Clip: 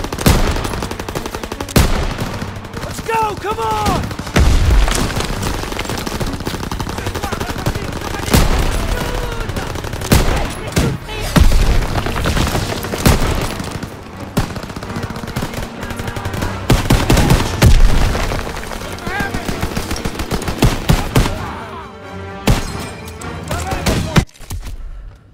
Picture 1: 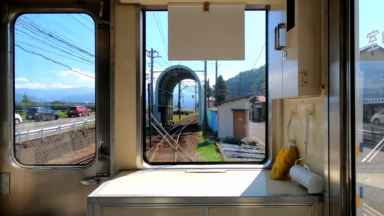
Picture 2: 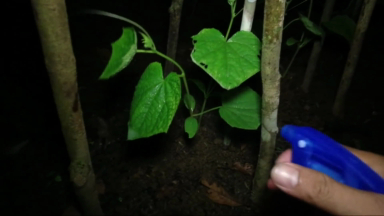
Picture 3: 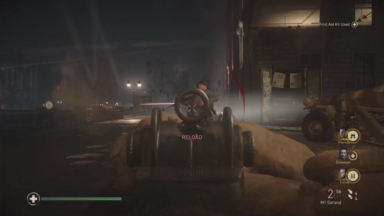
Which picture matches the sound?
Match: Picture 3